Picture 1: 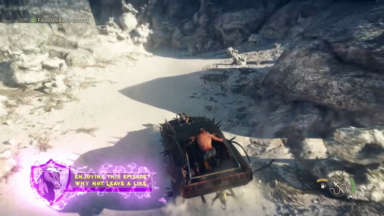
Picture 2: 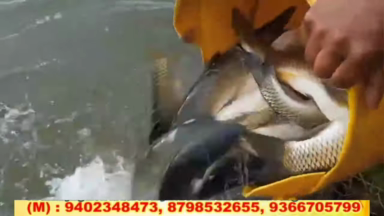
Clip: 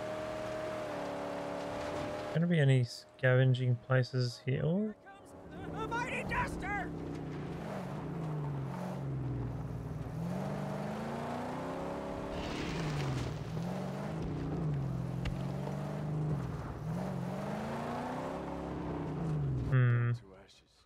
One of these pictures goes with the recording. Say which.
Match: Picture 1